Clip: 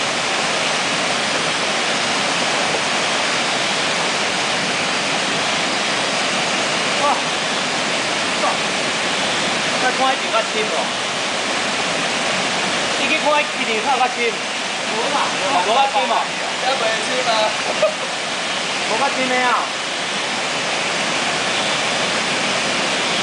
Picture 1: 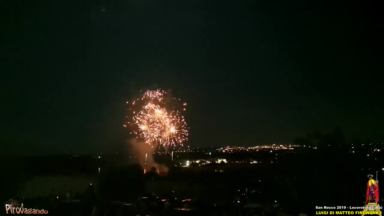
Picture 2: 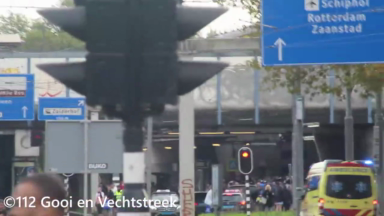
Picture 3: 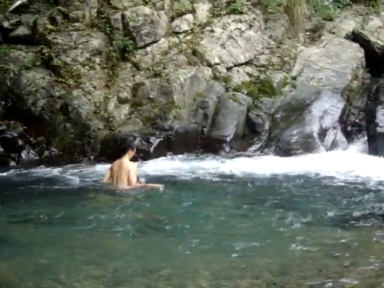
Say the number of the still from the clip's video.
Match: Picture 3